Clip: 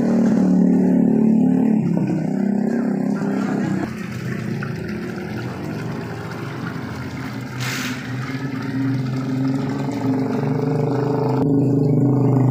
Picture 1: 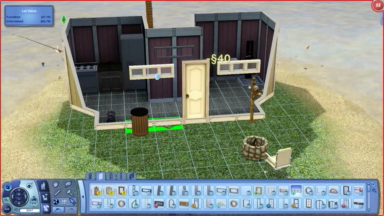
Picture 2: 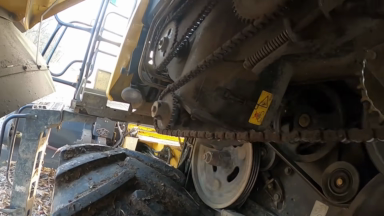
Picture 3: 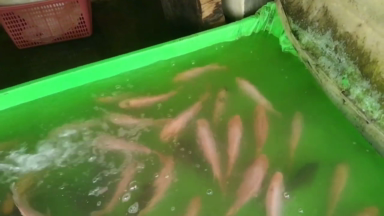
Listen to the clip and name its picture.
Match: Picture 3